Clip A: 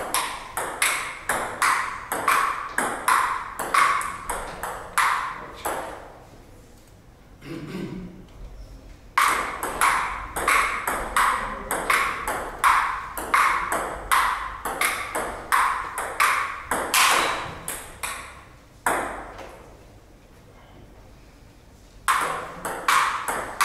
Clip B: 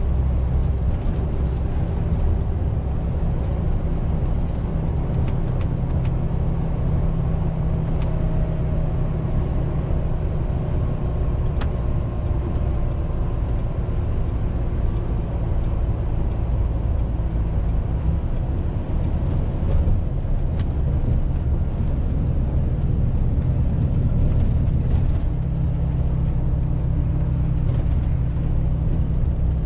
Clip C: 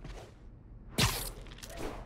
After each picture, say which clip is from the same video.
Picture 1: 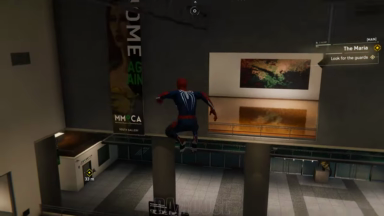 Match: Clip C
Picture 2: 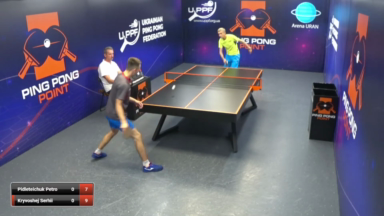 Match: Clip A